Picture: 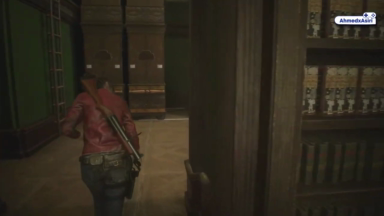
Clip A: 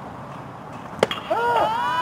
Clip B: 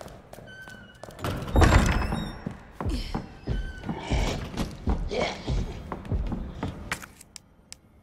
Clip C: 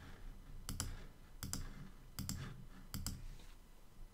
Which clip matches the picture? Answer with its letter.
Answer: B